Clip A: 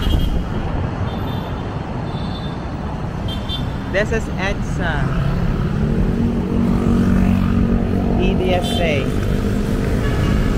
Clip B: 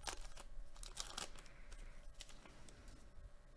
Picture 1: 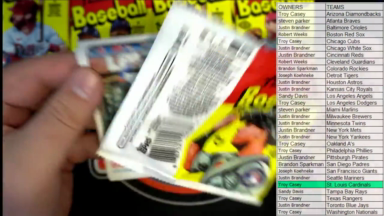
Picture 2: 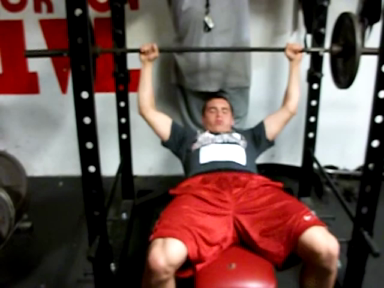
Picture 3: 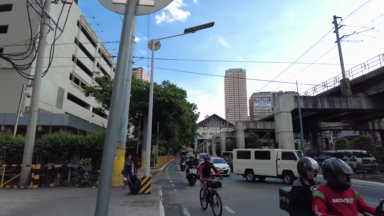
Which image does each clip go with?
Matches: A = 3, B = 1